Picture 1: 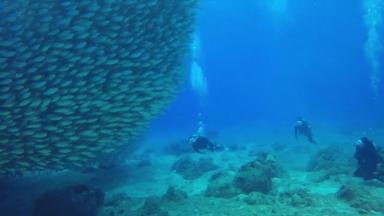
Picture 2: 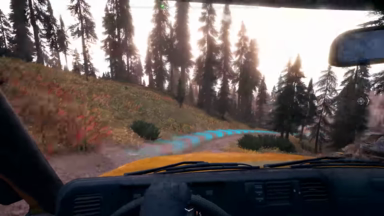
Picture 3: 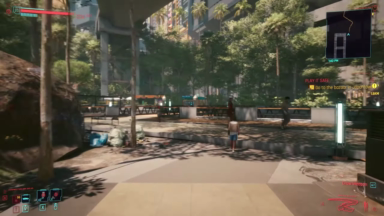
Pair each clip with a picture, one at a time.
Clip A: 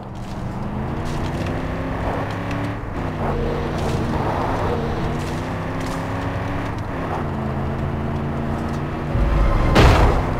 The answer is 2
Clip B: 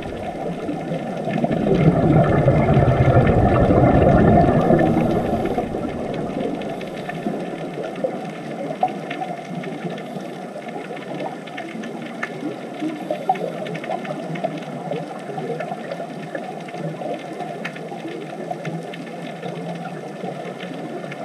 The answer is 1